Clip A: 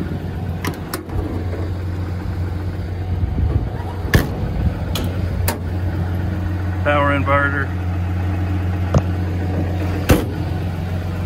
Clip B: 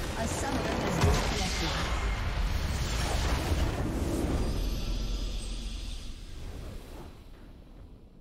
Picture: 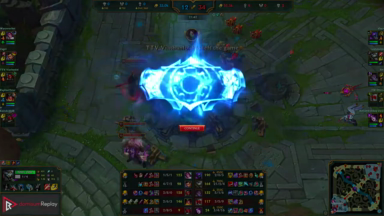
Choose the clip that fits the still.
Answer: B